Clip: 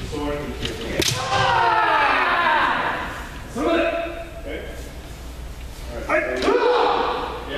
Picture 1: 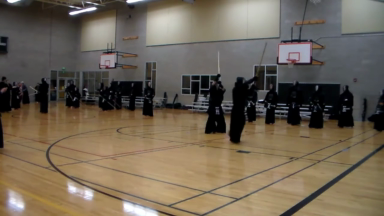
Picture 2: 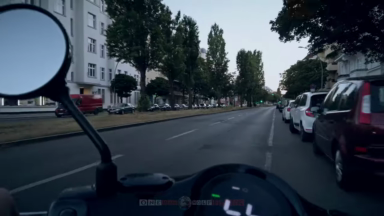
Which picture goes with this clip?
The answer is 1